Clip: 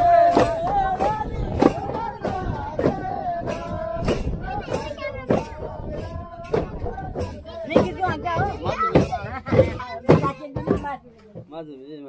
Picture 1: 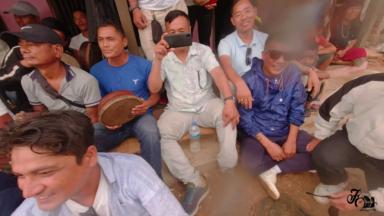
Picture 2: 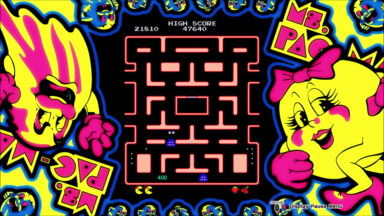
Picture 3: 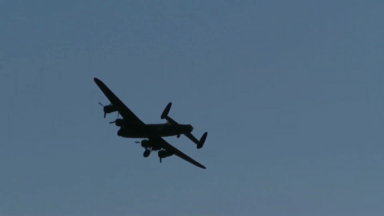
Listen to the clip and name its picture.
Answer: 1